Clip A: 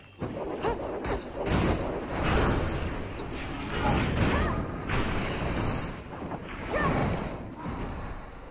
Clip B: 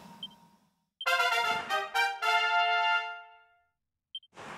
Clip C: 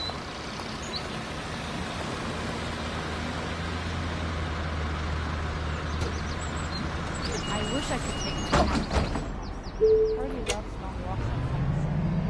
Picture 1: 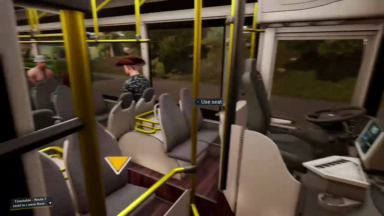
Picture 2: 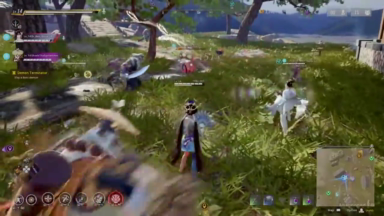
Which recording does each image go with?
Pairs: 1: C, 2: A